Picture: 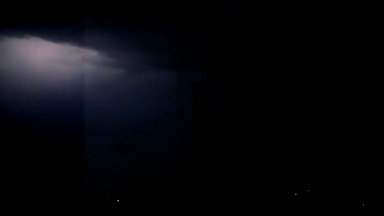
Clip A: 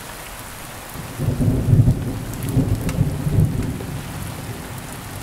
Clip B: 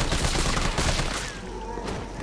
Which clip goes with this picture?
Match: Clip A